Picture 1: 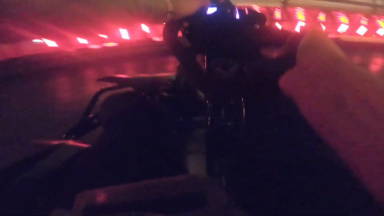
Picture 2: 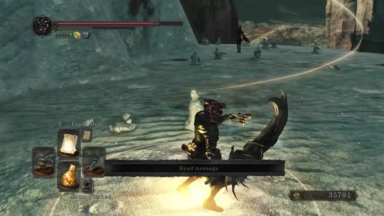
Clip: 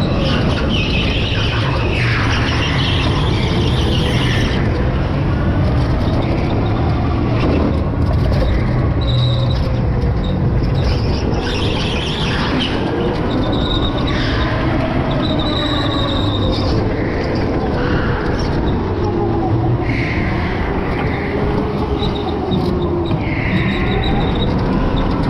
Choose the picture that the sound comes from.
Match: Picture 1